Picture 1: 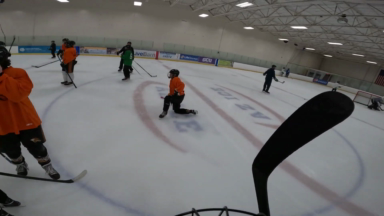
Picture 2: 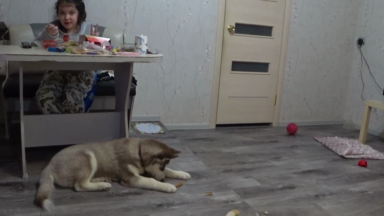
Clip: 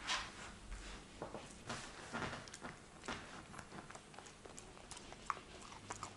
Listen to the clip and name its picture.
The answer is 2